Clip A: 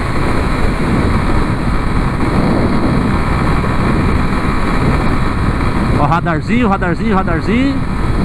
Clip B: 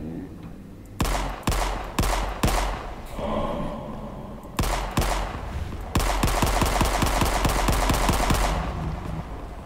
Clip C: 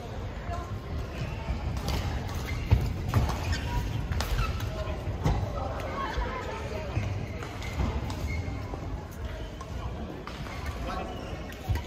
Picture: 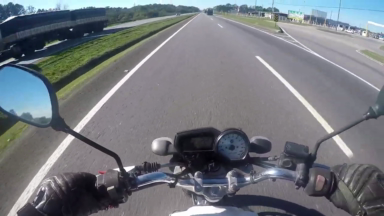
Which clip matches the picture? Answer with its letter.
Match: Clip A